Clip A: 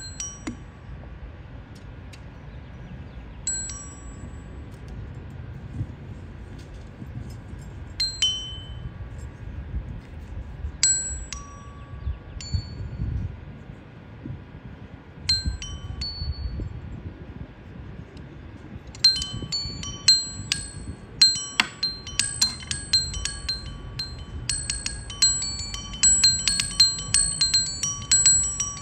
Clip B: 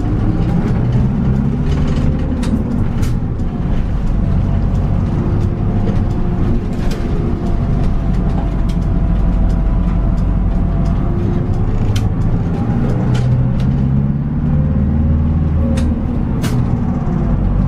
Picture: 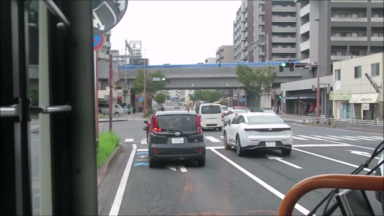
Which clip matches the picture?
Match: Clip B